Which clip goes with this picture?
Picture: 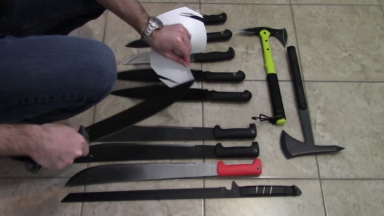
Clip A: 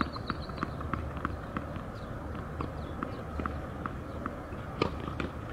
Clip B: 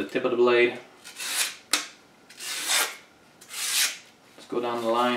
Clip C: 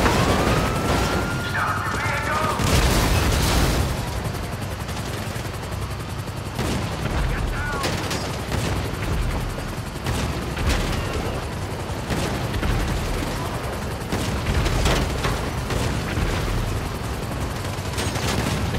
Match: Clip B